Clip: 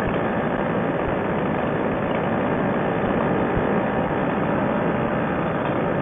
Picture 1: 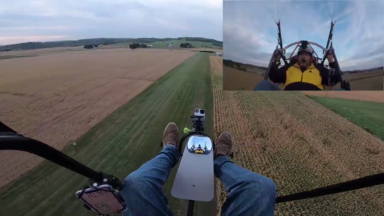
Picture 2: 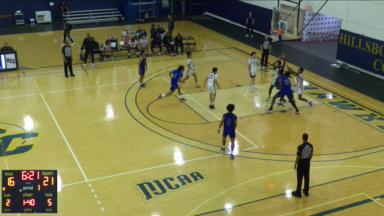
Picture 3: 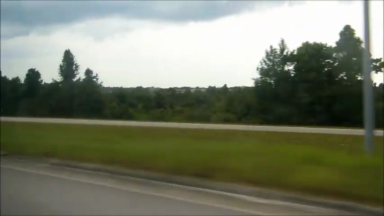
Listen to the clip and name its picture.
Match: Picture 1